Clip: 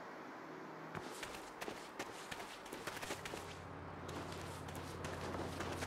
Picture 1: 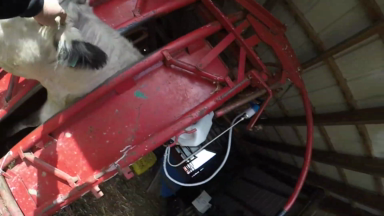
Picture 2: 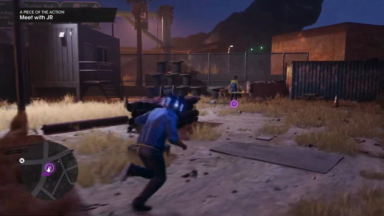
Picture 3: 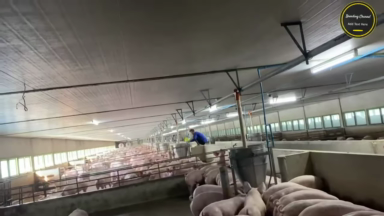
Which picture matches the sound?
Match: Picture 2